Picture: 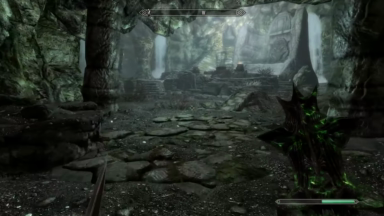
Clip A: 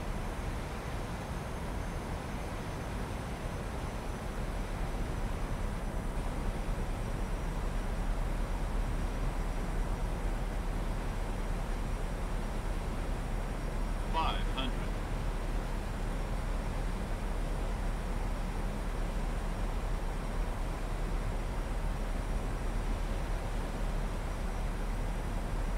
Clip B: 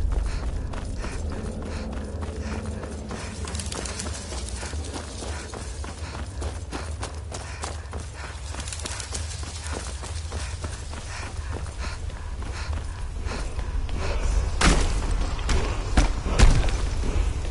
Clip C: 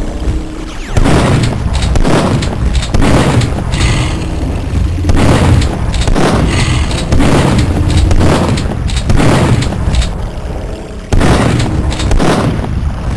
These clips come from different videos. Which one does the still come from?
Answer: B